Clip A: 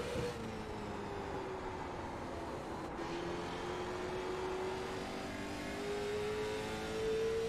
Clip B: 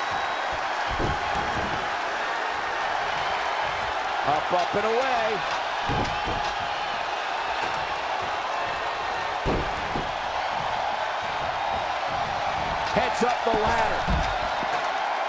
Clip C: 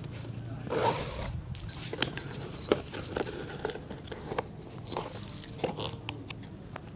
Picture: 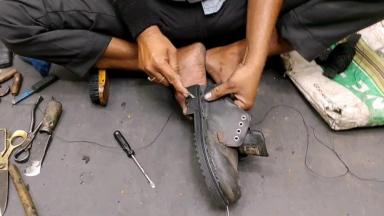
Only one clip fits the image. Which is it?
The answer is C